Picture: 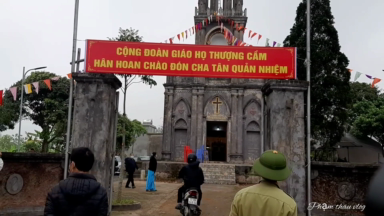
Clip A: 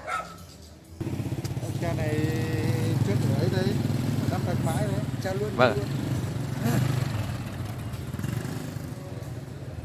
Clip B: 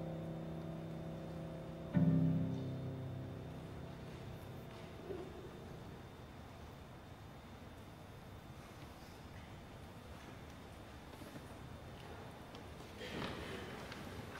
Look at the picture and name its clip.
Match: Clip A